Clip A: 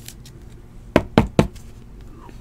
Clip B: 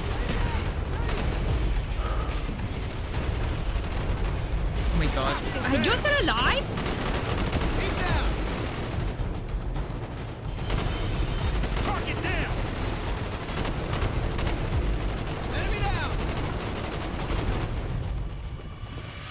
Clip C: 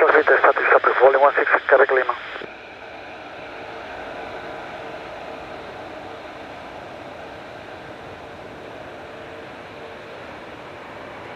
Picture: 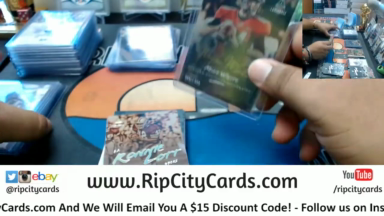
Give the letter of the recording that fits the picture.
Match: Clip A